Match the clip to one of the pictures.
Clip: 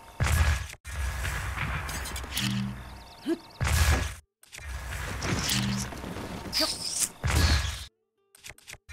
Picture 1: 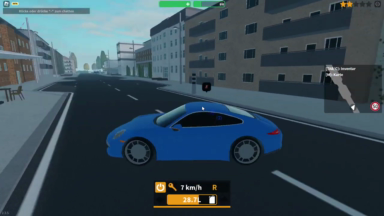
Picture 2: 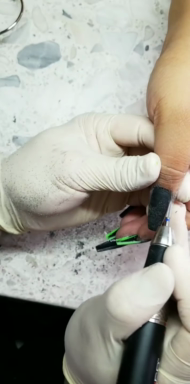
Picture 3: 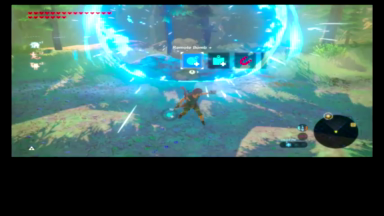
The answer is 3